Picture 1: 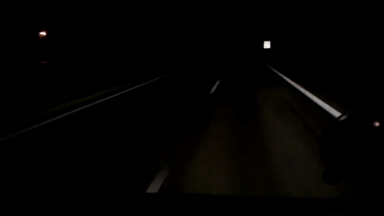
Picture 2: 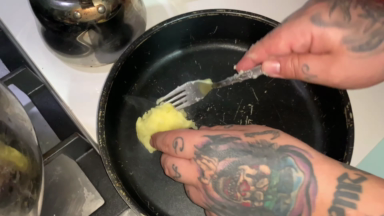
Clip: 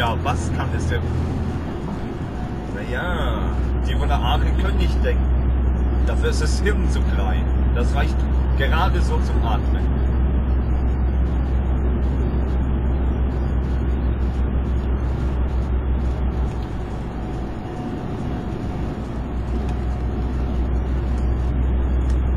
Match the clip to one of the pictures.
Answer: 1